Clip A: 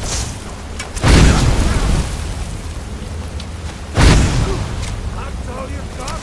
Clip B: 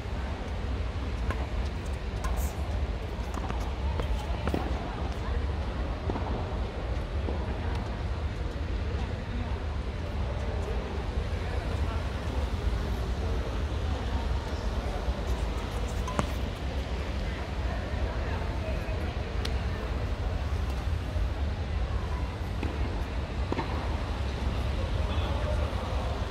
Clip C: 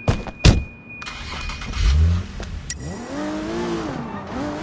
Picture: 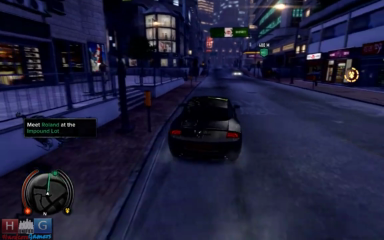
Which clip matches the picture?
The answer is C